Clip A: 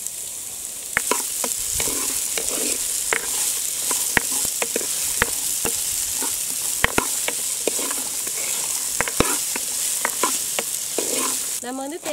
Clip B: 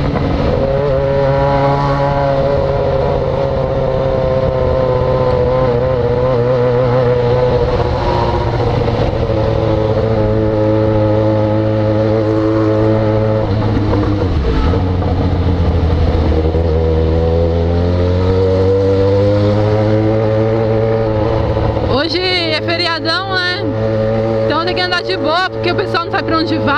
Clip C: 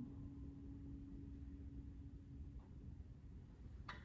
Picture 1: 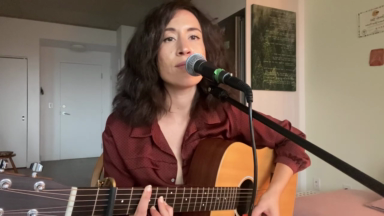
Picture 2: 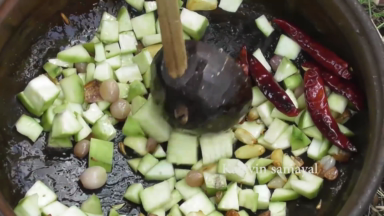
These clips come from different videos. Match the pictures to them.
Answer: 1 C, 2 A